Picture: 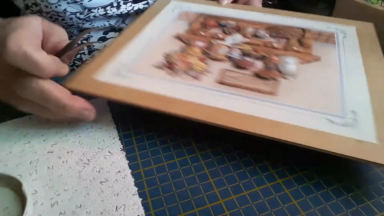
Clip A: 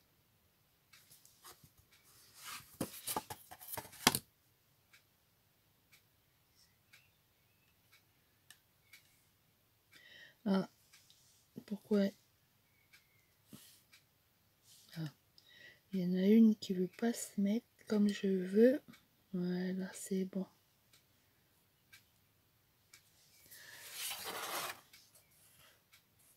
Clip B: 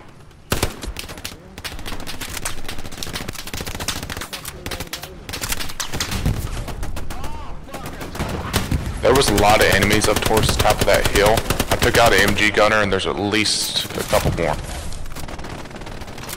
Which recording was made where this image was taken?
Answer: A